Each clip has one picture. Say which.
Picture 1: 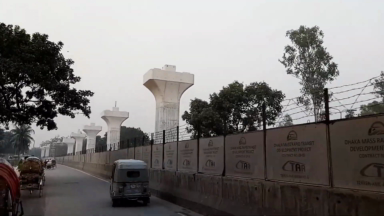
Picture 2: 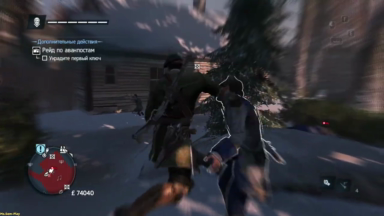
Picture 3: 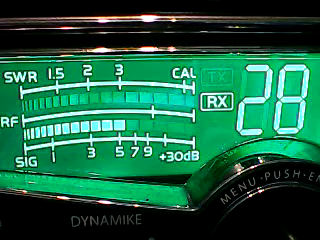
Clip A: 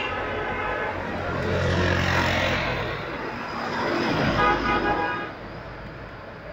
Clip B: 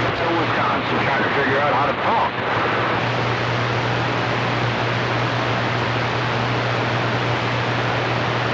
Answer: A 1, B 3